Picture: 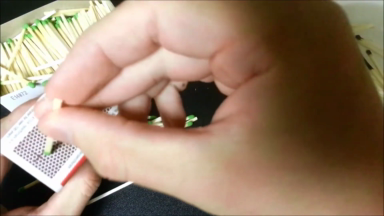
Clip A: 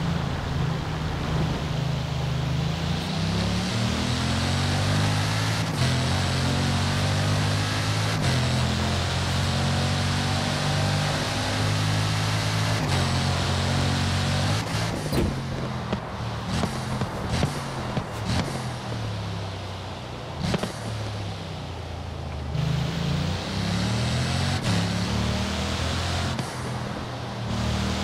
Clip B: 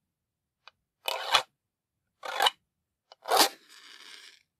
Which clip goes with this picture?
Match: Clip B